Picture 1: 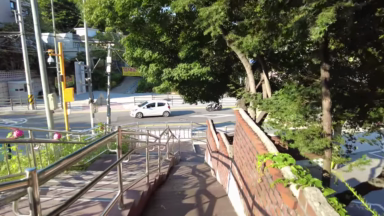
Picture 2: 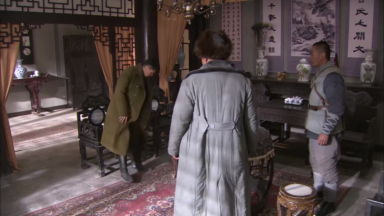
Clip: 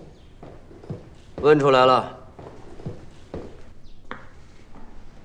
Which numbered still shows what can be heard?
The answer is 2